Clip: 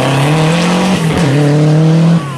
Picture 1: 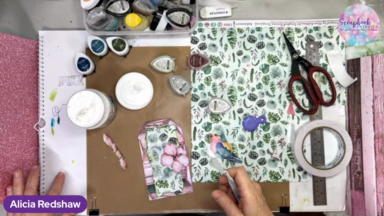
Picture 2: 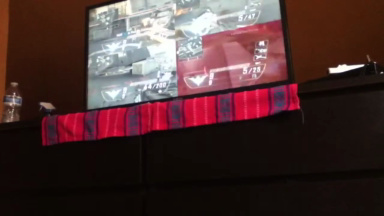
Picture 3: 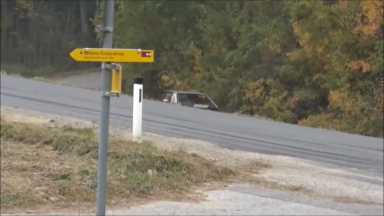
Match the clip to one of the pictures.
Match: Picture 3